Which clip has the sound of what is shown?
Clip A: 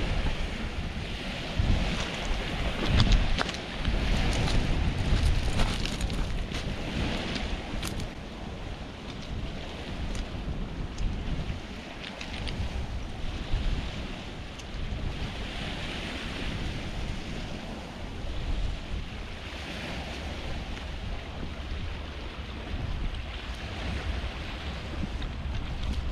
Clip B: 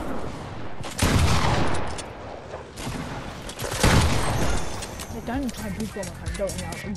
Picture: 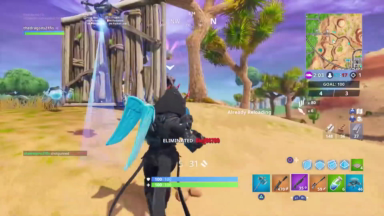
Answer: B